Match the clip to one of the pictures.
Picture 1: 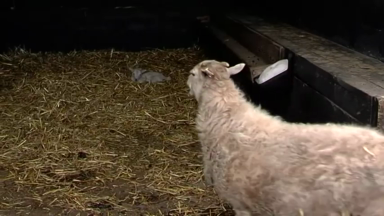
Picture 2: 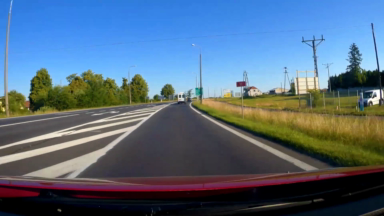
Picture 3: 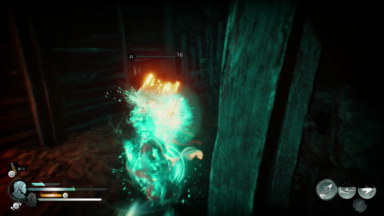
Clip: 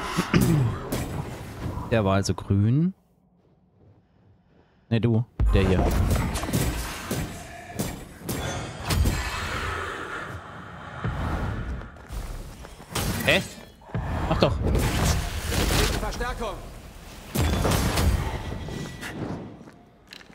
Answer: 3